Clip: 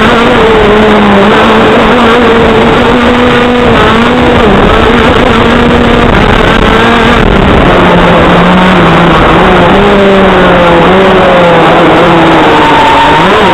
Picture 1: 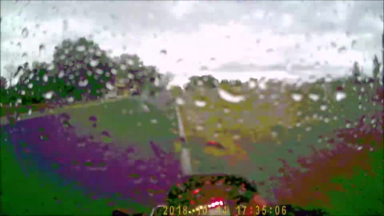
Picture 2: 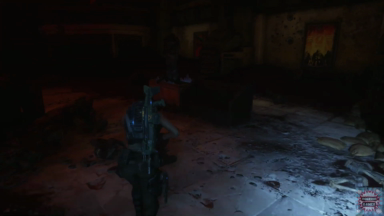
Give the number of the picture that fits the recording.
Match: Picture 1